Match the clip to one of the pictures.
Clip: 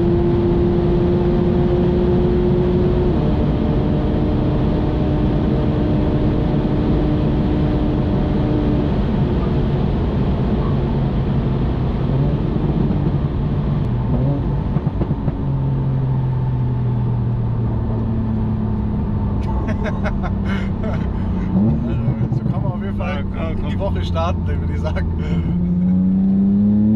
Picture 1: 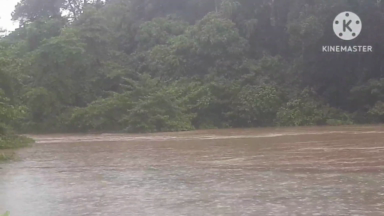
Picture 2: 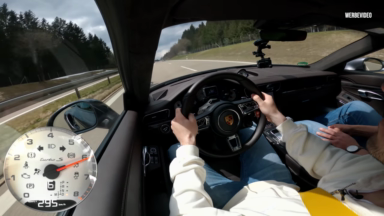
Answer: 2